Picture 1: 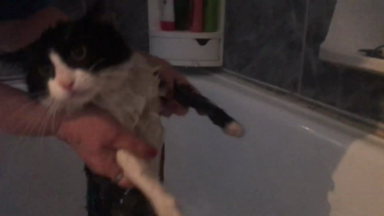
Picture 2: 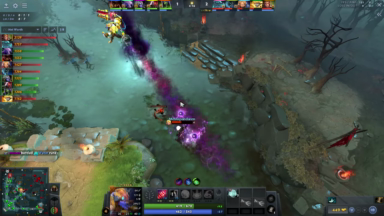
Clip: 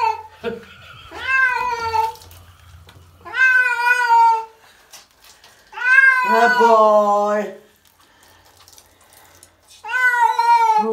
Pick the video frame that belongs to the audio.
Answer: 1